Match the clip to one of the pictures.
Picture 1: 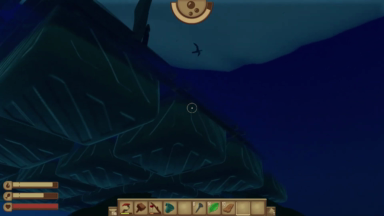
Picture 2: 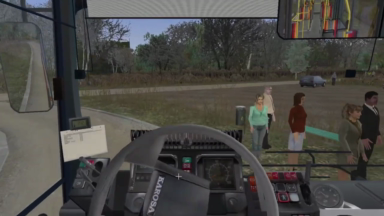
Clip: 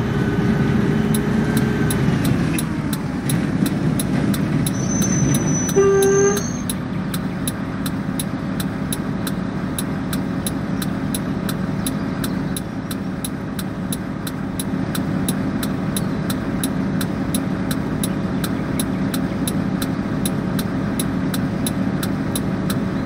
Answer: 2